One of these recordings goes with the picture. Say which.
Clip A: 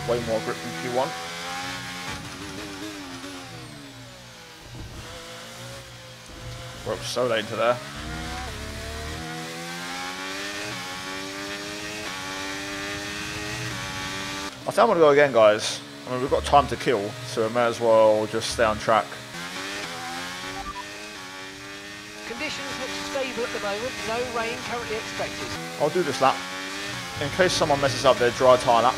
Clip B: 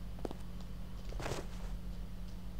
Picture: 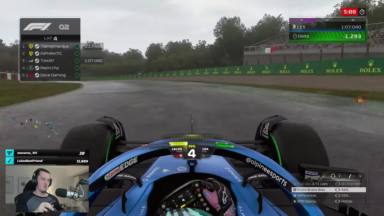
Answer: A